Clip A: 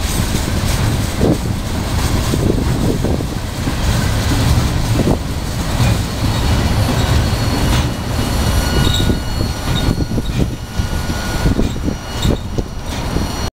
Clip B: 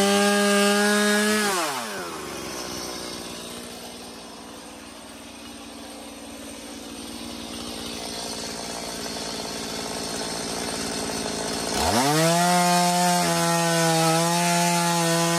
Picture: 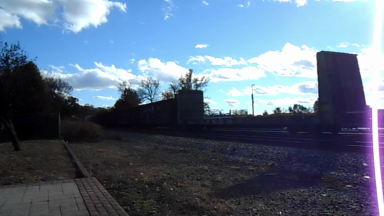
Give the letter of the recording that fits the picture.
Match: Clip A